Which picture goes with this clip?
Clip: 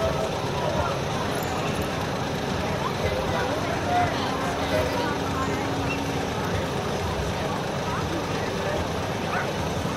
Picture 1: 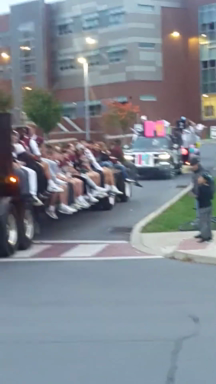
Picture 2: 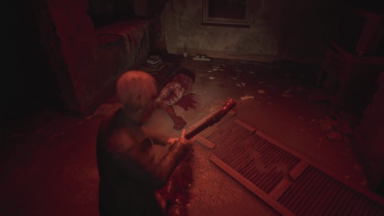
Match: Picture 1